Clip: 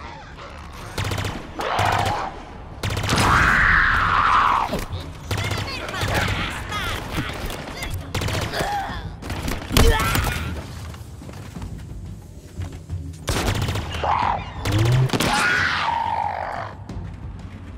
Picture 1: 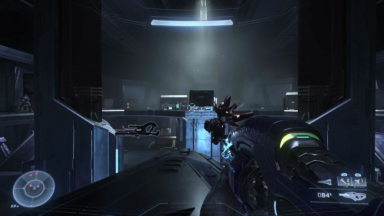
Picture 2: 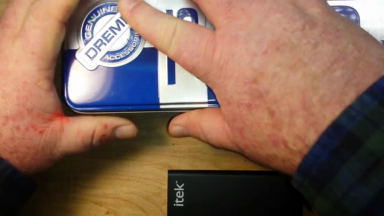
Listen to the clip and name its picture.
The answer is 1